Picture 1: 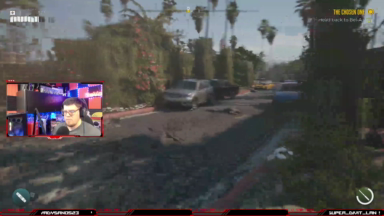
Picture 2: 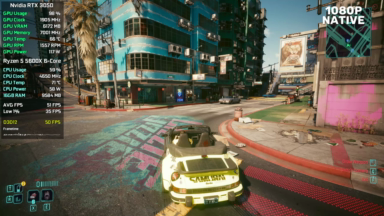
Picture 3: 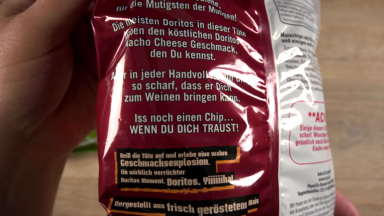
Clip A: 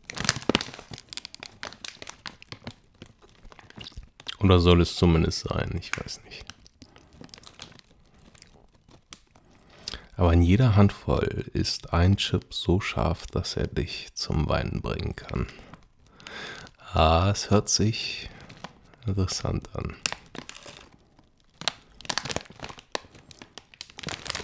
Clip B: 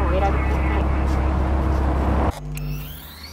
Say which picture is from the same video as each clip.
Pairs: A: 3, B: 2